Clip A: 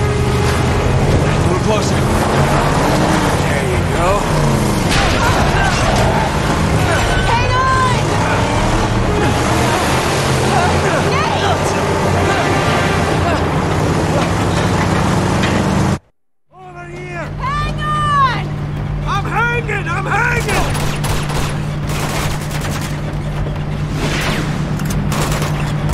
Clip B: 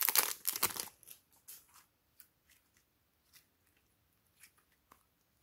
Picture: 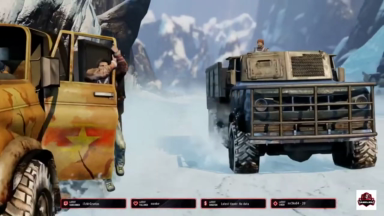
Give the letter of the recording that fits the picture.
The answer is A